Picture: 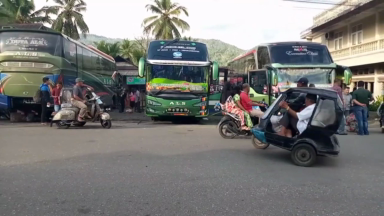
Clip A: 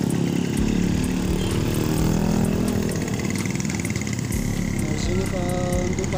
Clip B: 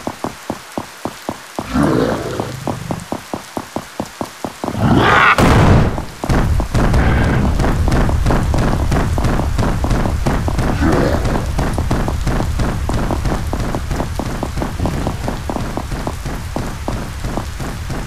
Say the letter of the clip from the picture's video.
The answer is A